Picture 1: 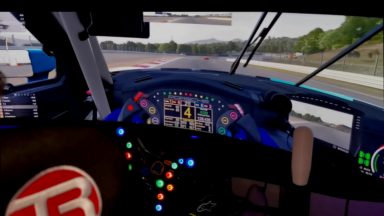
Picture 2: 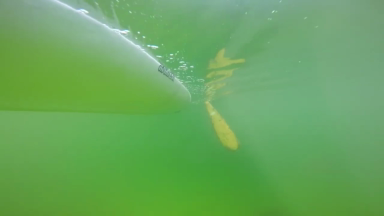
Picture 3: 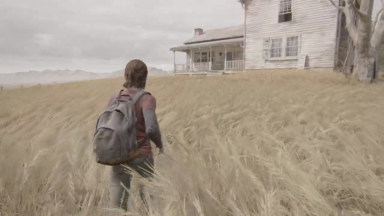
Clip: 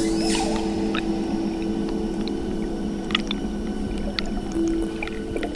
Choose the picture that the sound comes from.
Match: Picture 2